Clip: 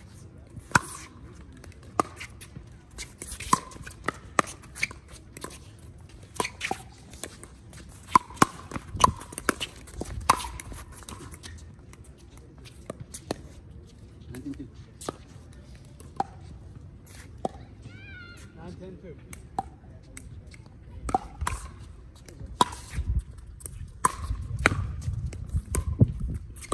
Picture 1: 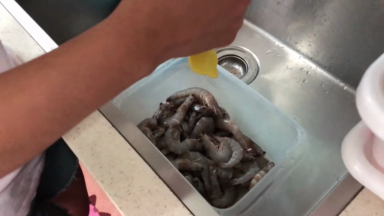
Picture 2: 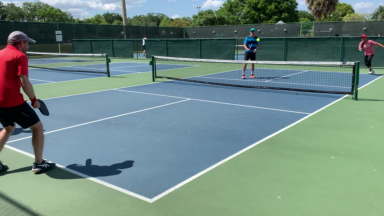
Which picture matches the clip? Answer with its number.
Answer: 2